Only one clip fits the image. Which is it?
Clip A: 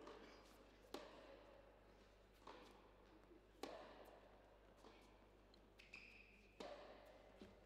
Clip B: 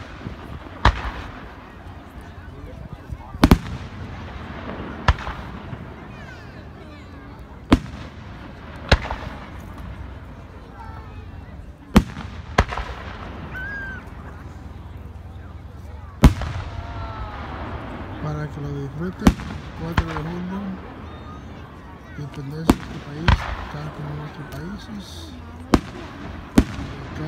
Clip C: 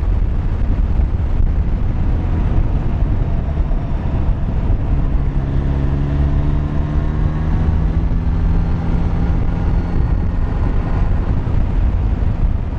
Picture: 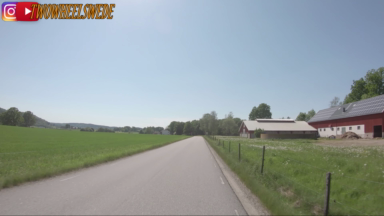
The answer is C